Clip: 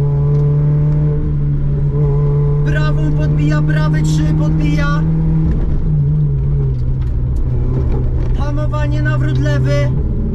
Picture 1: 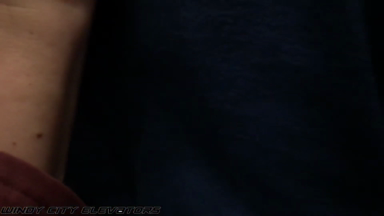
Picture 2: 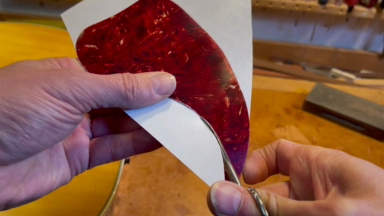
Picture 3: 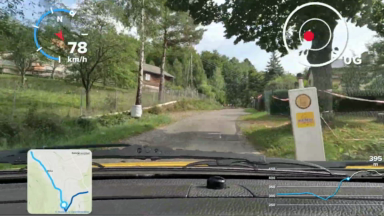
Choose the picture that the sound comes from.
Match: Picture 3